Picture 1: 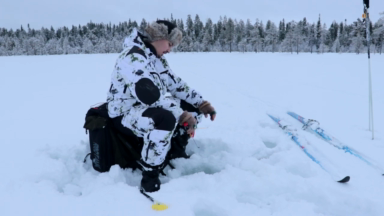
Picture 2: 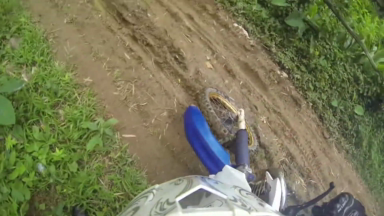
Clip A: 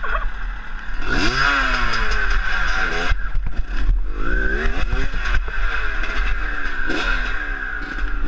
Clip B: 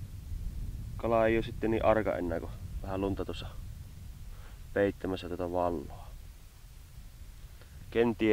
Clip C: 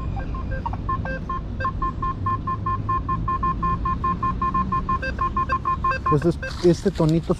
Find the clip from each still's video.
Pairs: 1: B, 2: A